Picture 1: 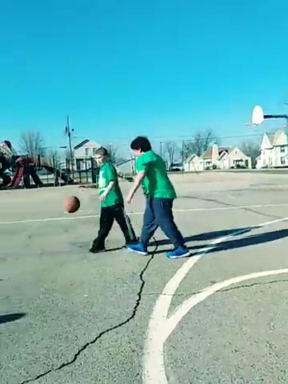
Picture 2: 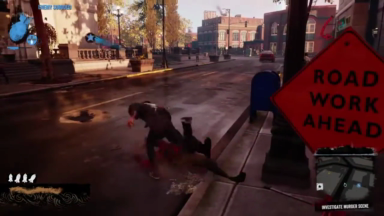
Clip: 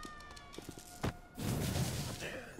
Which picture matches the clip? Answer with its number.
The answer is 2